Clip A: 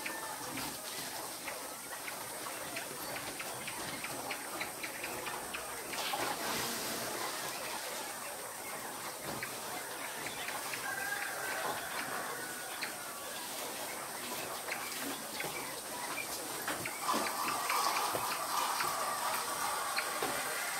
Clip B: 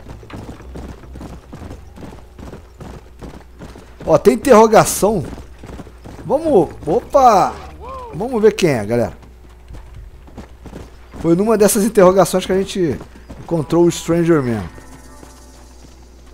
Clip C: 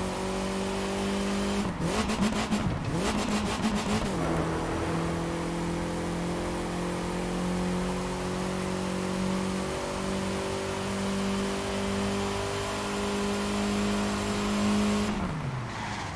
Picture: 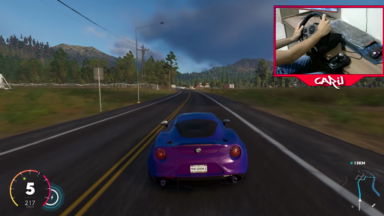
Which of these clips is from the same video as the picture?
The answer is C